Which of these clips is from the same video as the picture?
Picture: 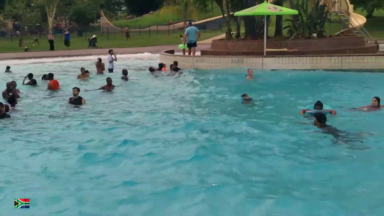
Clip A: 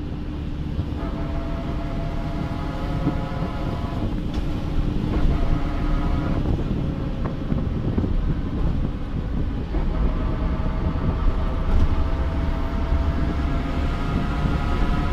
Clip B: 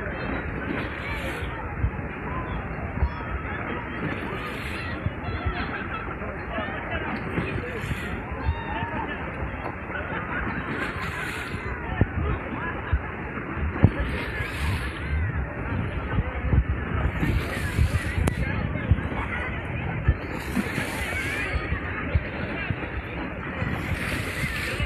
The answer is B